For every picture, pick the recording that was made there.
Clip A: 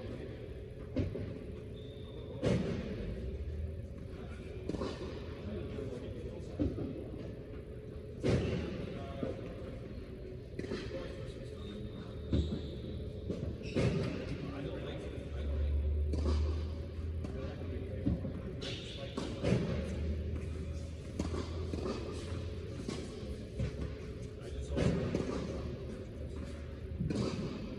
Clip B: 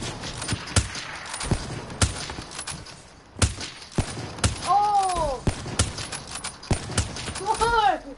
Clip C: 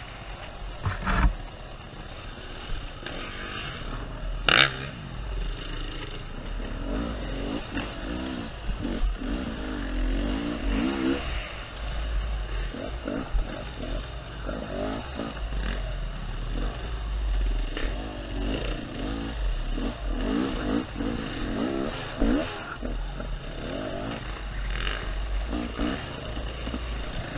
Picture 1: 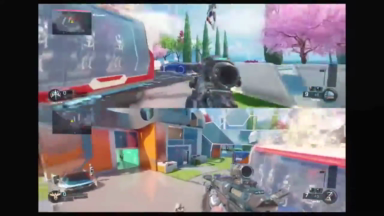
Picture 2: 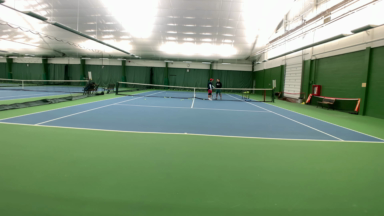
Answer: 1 B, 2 A